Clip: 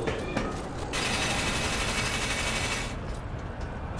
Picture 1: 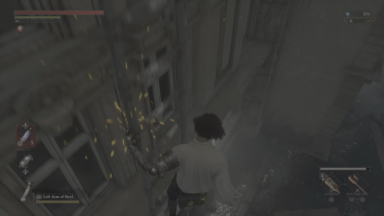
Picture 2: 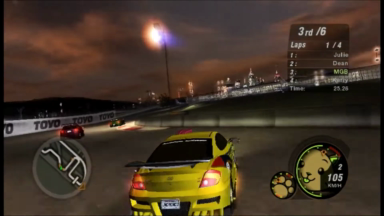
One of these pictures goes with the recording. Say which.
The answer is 1